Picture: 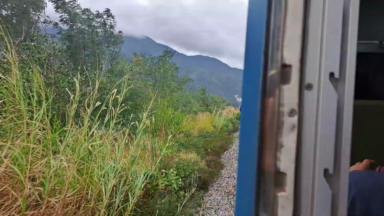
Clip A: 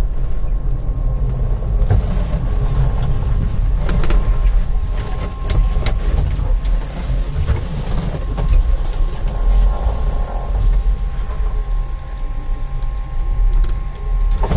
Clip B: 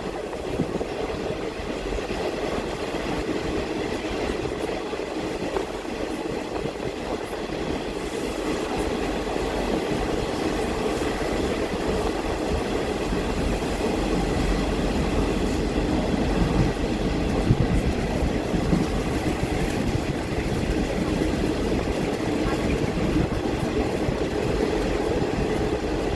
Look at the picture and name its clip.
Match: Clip B